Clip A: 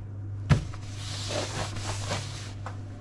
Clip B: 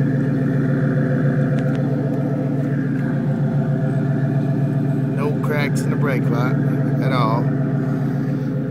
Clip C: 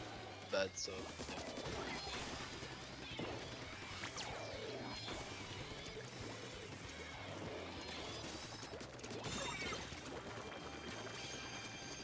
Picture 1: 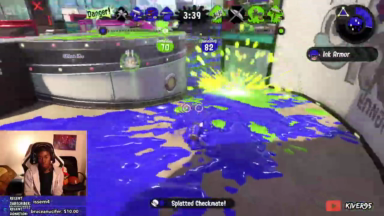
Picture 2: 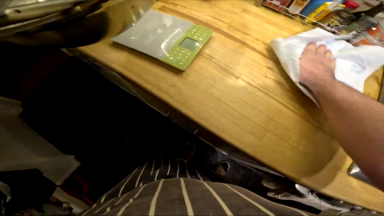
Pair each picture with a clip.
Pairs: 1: C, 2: A